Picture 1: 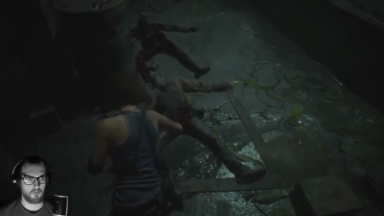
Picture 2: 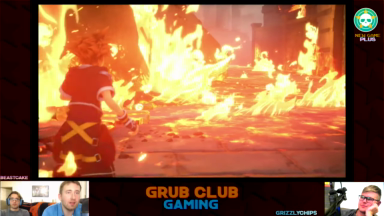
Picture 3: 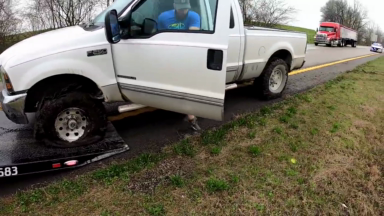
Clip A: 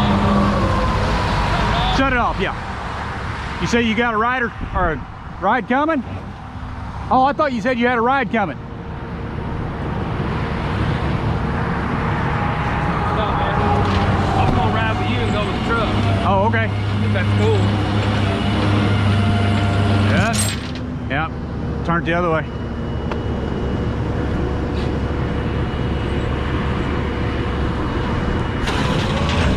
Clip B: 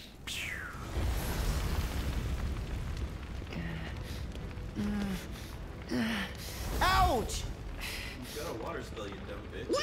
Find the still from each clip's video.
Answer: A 3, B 2